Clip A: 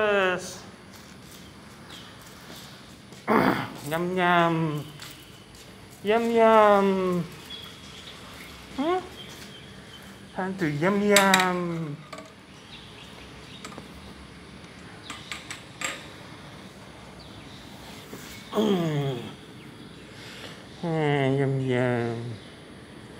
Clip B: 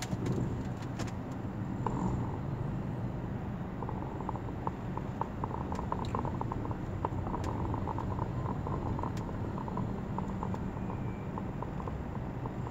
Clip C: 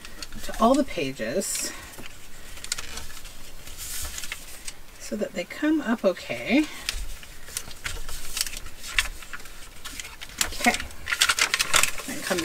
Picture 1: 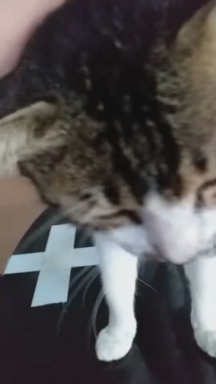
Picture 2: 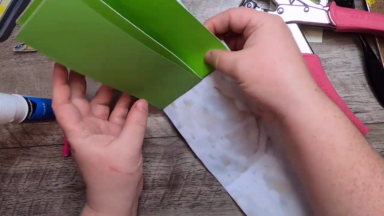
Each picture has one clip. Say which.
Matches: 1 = A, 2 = C